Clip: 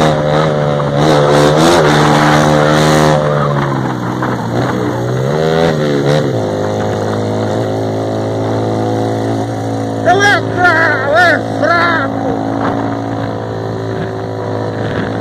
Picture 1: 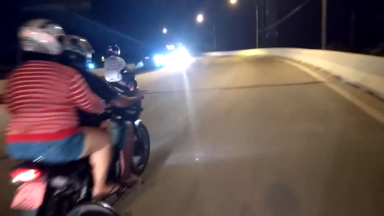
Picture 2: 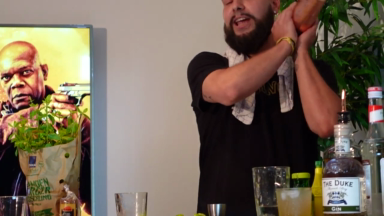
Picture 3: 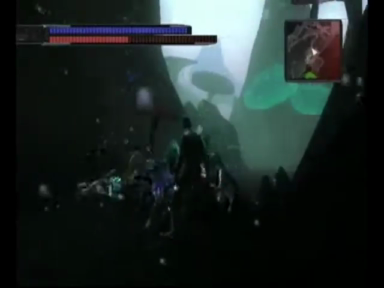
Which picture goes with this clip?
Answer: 1